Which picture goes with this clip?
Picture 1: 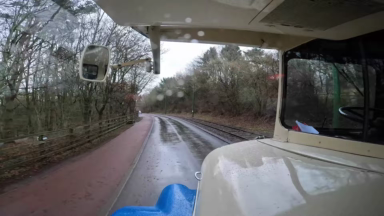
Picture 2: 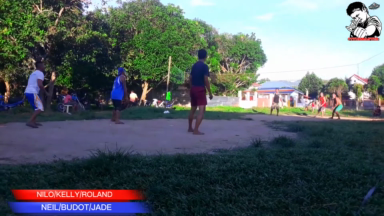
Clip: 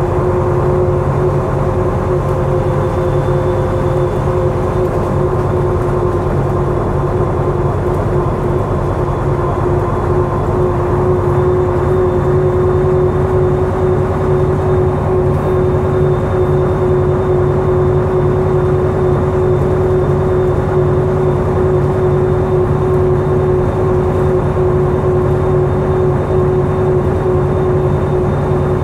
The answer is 1